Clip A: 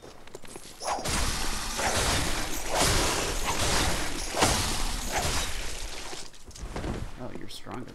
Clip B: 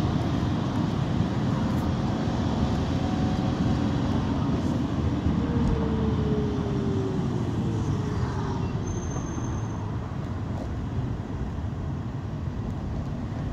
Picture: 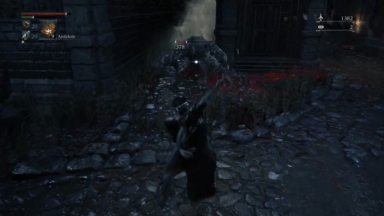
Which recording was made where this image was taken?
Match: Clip A